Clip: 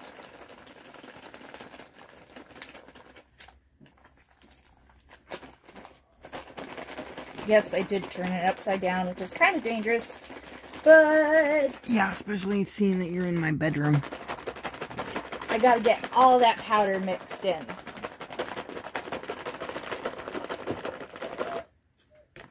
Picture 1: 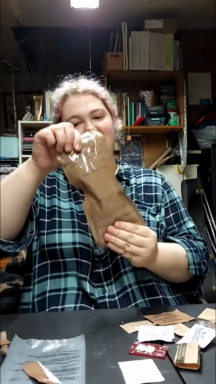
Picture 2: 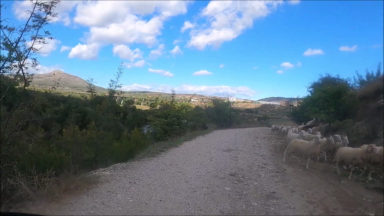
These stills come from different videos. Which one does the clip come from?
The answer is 1